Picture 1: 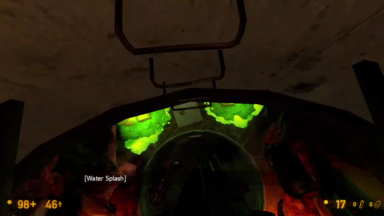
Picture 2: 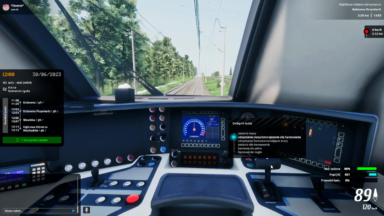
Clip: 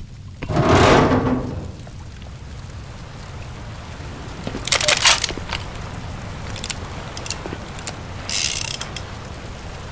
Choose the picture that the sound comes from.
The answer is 1